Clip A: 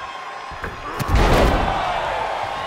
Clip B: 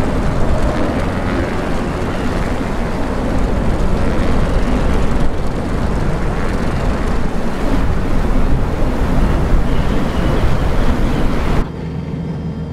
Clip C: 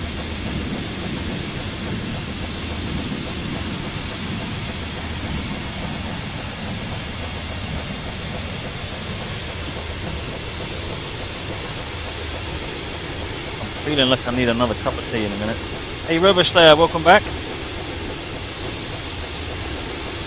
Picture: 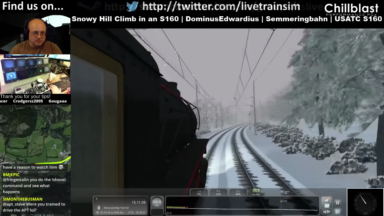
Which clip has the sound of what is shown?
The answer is C